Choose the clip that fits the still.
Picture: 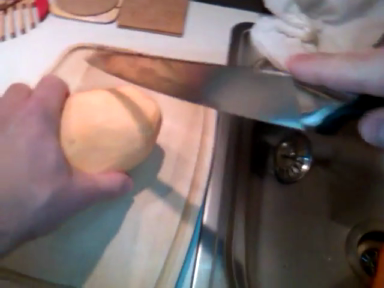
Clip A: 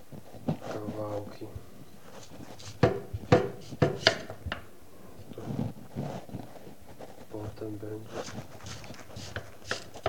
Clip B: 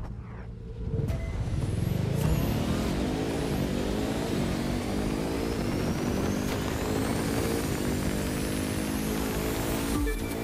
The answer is A